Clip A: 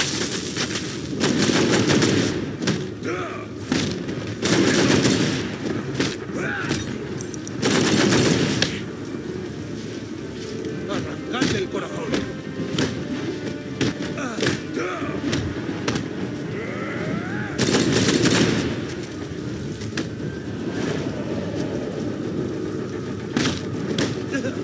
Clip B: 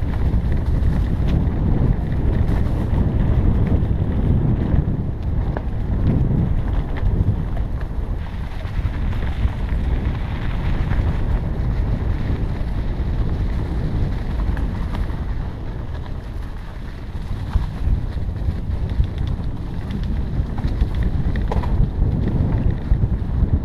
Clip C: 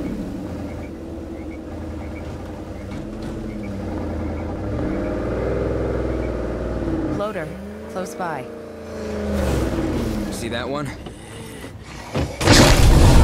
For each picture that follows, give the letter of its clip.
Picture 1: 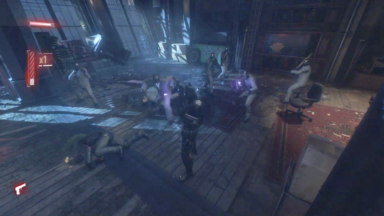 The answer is A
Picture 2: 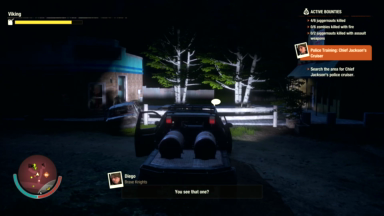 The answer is C